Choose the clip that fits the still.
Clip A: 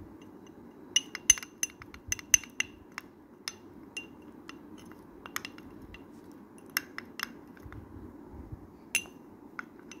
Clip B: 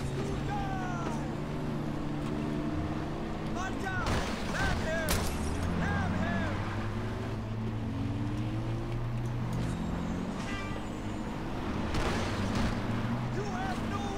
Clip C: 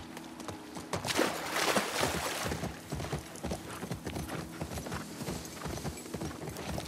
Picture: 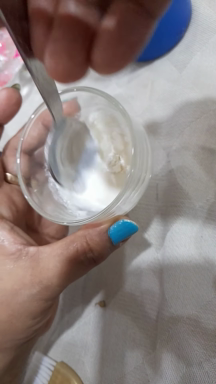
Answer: A